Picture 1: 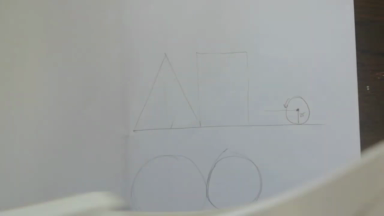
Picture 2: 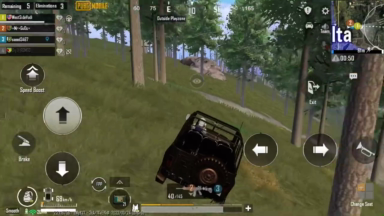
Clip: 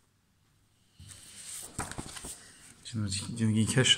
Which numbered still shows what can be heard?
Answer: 1